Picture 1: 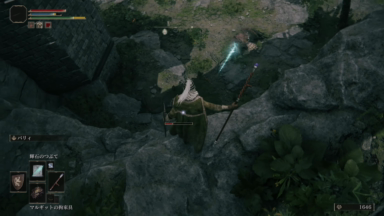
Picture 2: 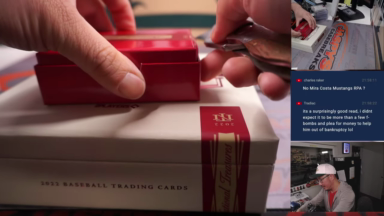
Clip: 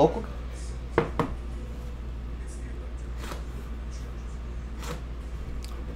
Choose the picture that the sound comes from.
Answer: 2